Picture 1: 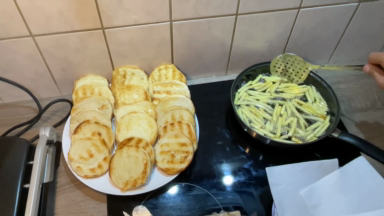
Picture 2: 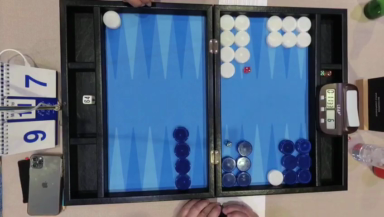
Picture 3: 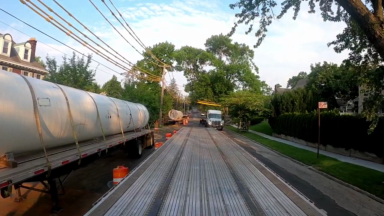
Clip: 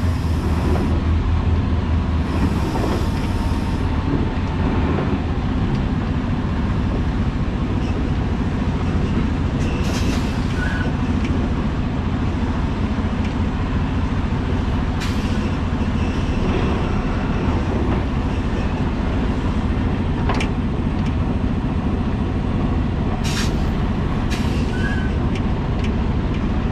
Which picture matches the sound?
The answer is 3